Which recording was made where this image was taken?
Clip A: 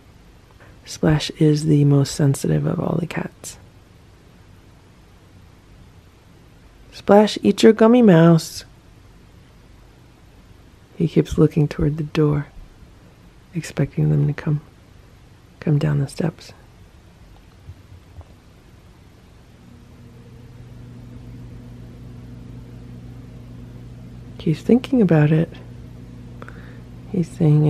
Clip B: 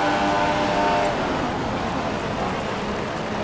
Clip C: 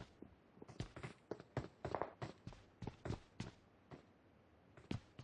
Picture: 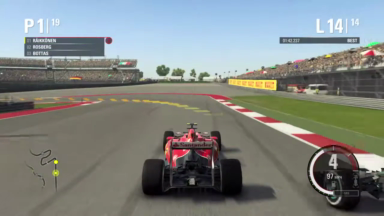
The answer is B